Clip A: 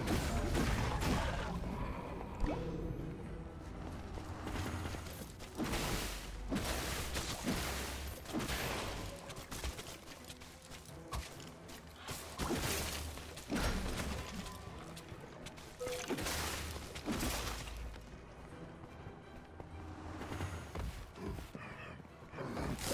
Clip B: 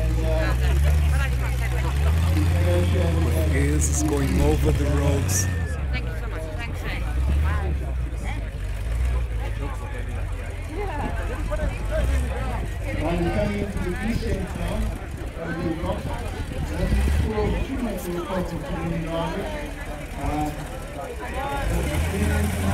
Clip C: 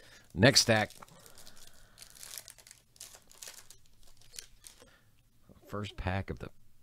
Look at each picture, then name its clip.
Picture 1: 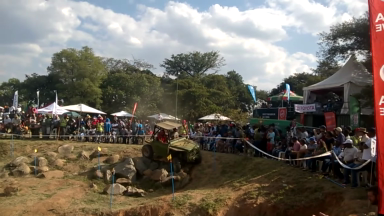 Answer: B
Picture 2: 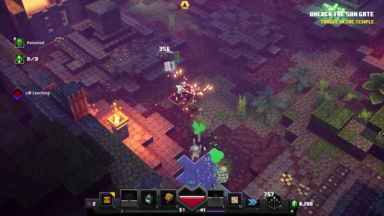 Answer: A